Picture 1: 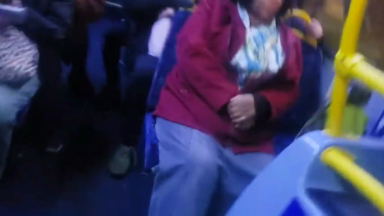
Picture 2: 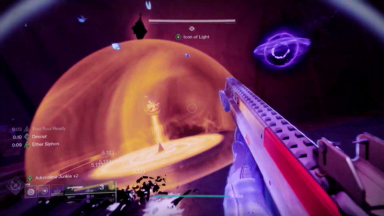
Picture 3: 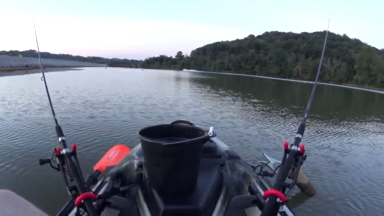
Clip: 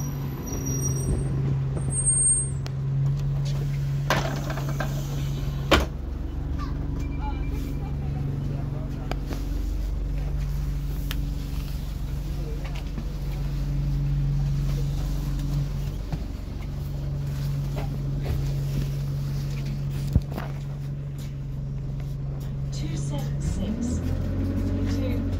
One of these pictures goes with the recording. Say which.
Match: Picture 1